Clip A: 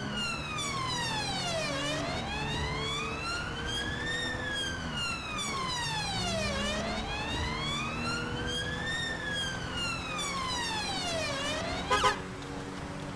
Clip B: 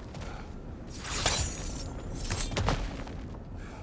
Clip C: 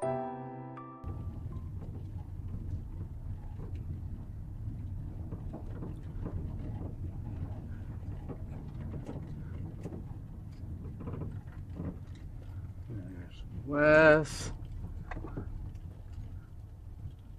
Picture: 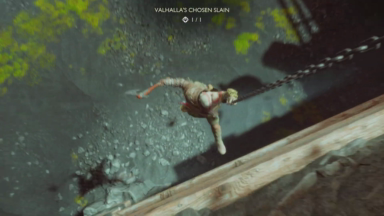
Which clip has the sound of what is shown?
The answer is B